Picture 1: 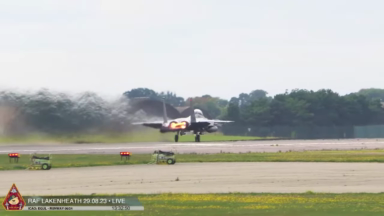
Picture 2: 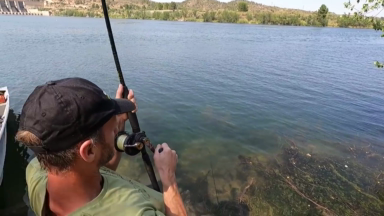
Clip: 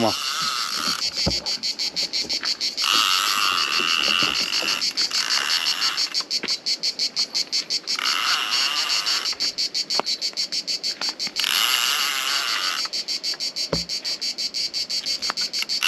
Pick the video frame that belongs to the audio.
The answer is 2